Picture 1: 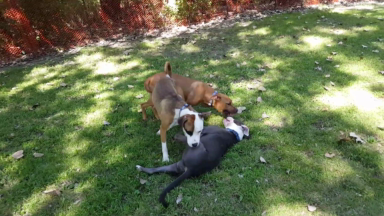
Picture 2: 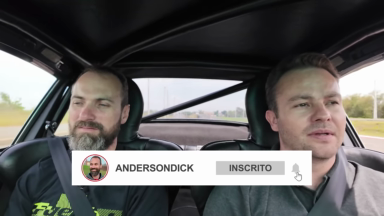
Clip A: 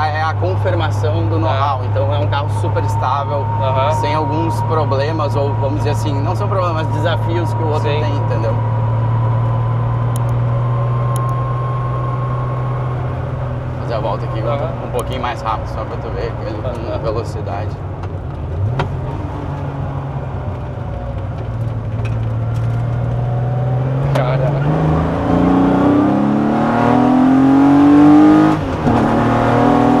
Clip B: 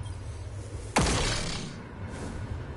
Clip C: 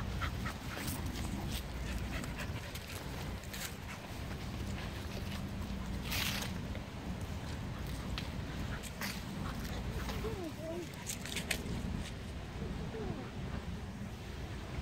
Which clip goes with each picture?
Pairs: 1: C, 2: A